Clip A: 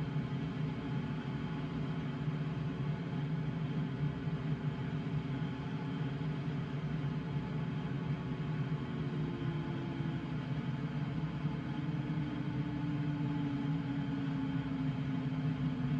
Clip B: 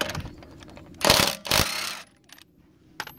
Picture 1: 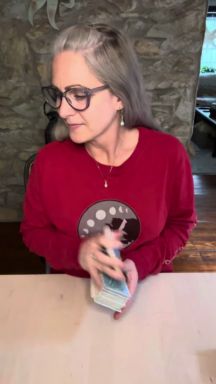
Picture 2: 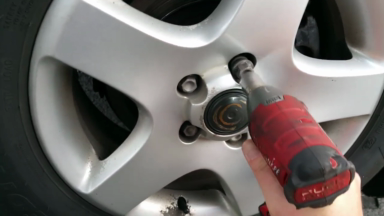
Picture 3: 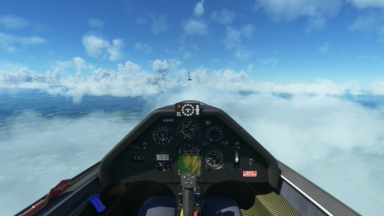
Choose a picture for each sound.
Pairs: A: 3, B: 2